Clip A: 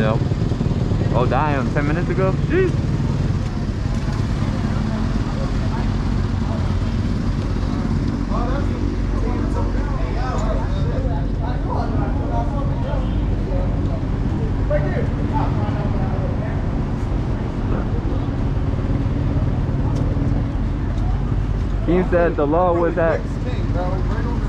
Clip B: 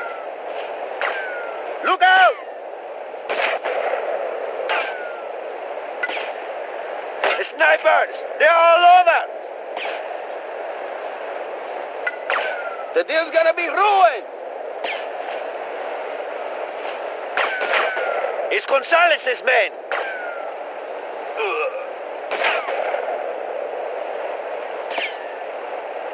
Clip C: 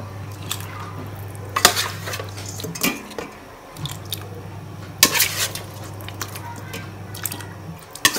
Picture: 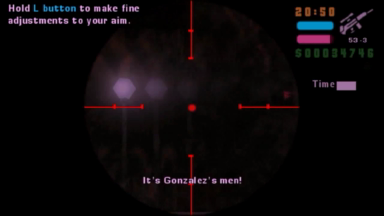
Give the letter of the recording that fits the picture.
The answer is B